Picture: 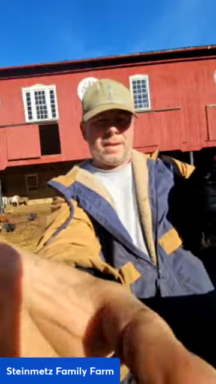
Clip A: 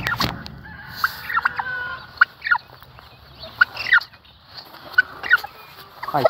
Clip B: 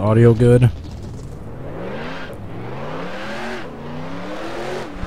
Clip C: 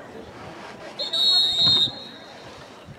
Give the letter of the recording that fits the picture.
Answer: A